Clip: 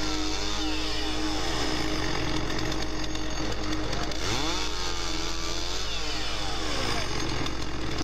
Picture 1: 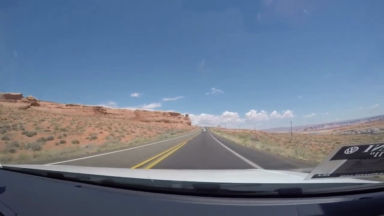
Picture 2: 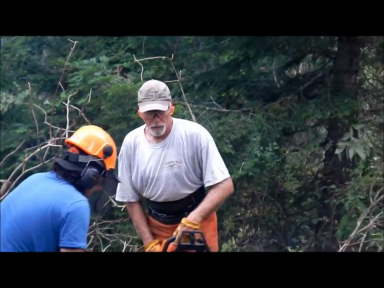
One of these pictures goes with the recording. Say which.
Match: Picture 2